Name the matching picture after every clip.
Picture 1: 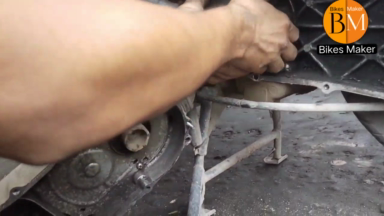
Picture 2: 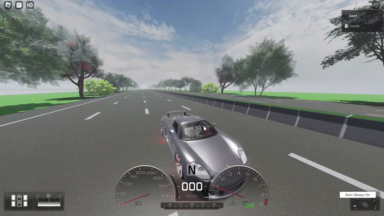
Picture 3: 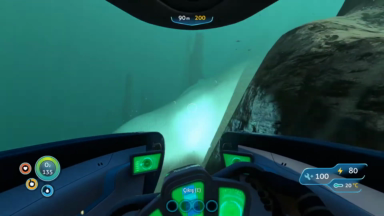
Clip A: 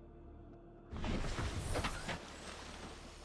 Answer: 3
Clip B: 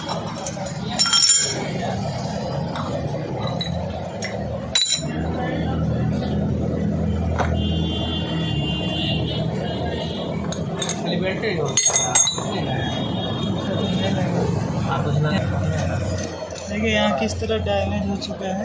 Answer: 1